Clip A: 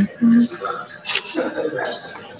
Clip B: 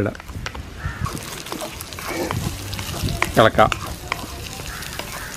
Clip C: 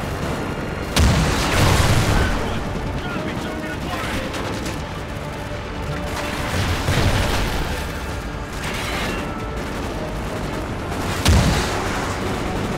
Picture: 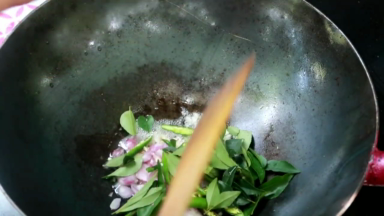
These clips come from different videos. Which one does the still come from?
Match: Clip B